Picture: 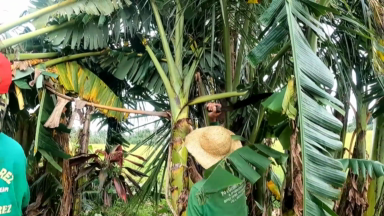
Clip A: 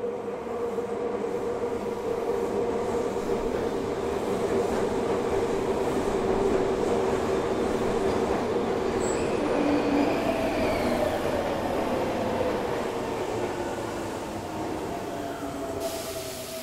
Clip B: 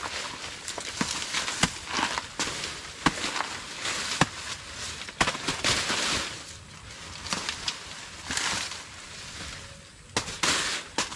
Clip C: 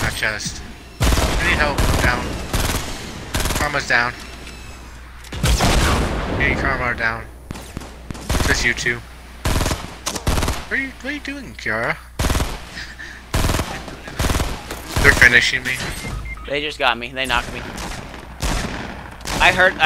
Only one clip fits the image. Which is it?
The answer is B